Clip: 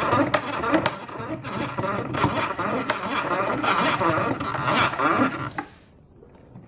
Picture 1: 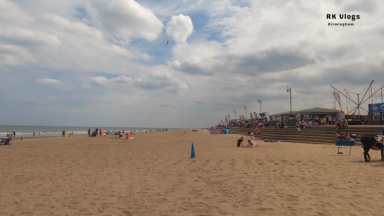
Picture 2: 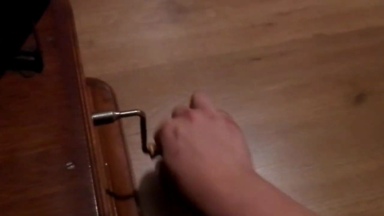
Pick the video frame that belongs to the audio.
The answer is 2